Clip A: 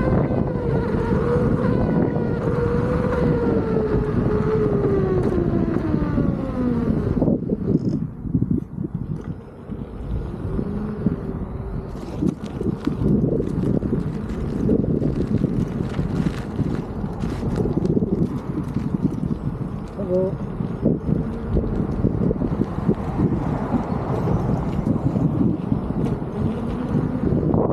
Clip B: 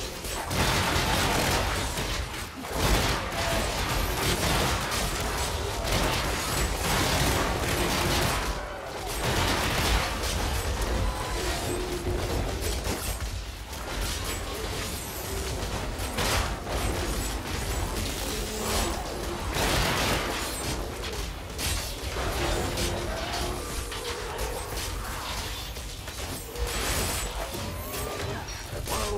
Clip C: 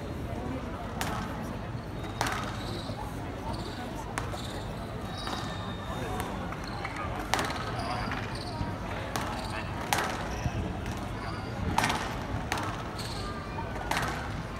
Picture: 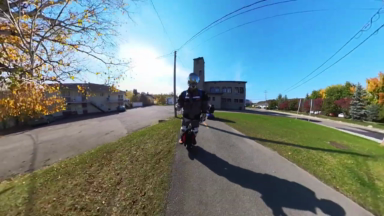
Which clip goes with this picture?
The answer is A